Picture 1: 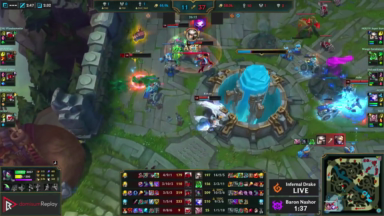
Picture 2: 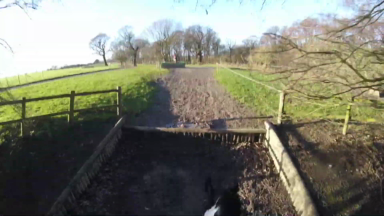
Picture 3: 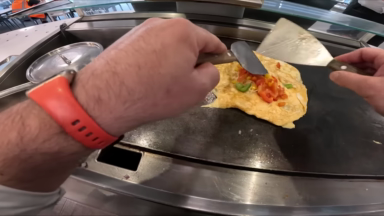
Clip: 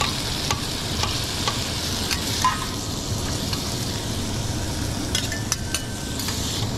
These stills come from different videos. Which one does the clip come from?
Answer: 3